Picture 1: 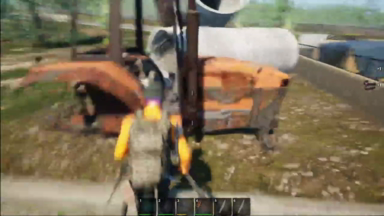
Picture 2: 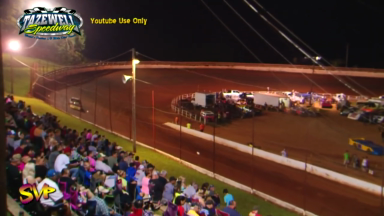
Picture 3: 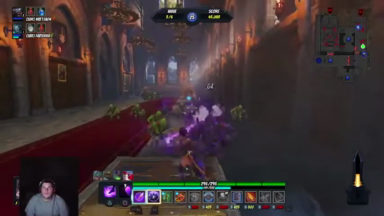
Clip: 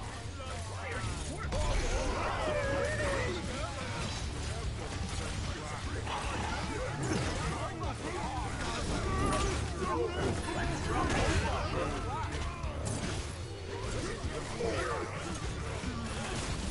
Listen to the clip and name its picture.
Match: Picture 3